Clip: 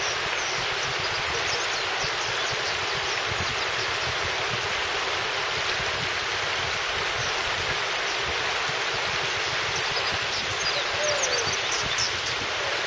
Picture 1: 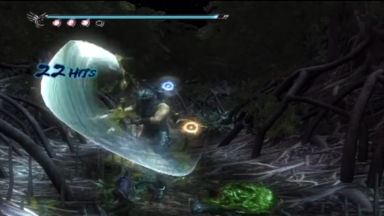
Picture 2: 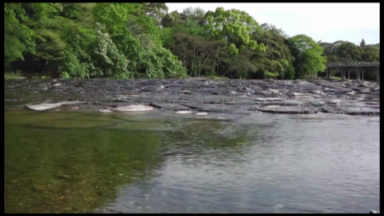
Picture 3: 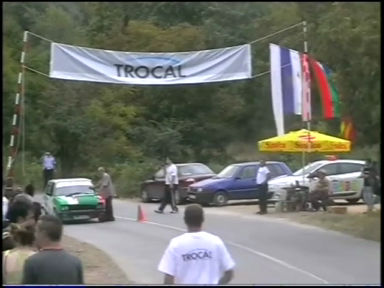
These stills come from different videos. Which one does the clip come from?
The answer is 2